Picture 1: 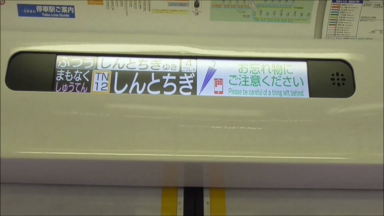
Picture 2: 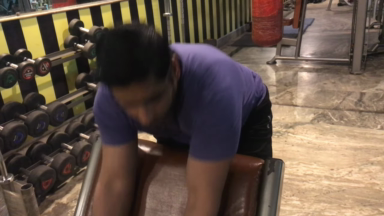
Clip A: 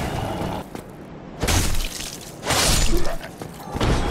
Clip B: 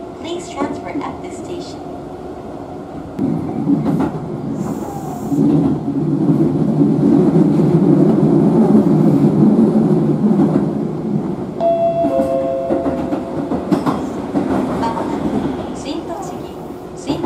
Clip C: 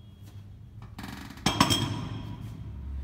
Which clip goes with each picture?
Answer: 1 B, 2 C